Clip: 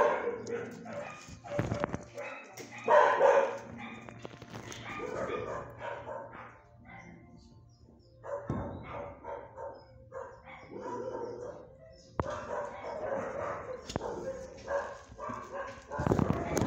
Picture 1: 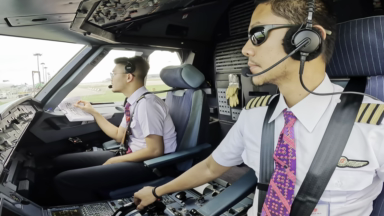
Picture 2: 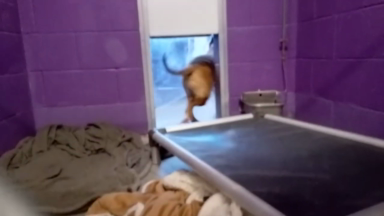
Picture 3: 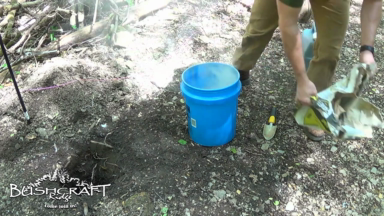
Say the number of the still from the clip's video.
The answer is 2